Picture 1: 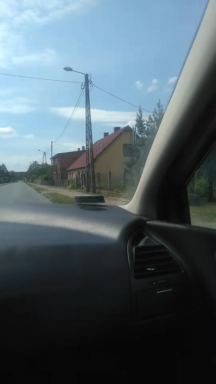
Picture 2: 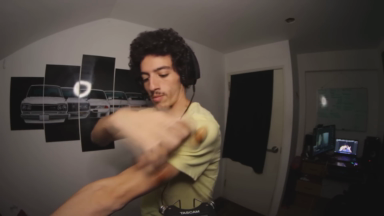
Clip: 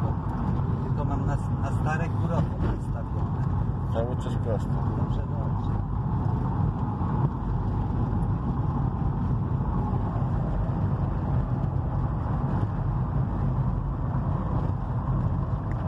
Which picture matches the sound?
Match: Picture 1